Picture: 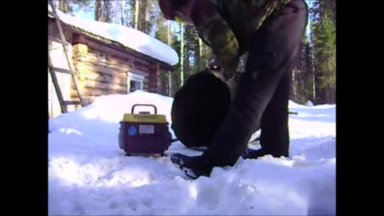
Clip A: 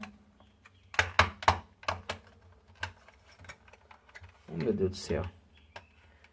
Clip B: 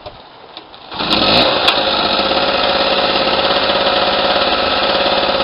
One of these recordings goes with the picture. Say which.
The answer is B